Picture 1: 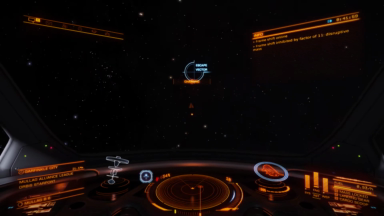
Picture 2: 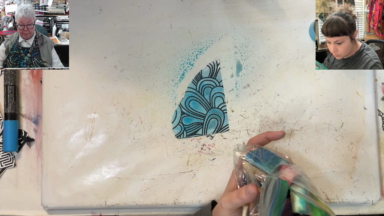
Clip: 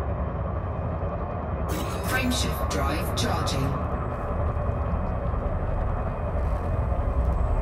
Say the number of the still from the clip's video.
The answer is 1